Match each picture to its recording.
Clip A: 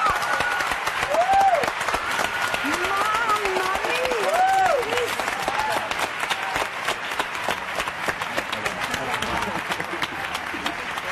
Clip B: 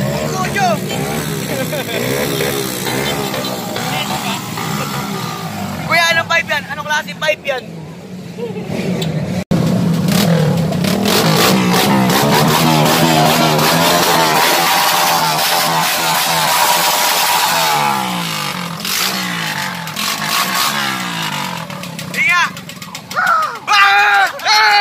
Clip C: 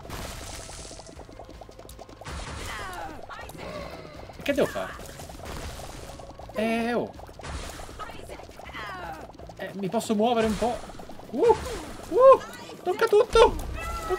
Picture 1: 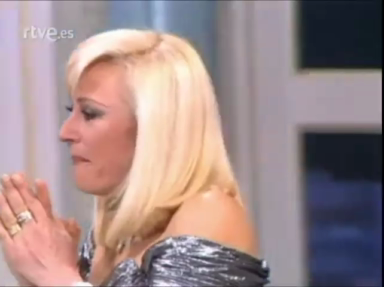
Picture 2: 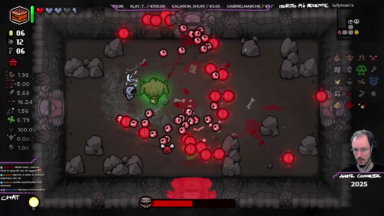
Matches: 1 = A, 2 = C